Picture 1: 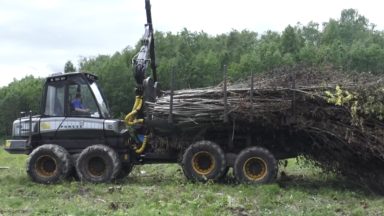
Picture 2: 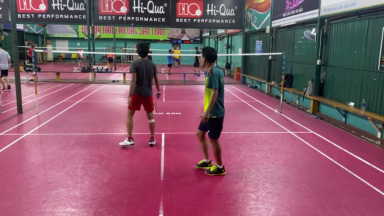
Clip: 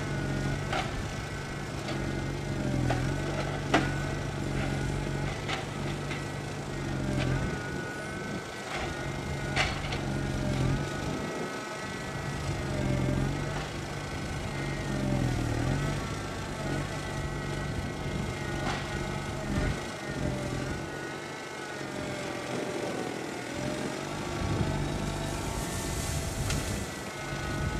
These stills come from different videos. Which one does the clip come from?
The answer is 1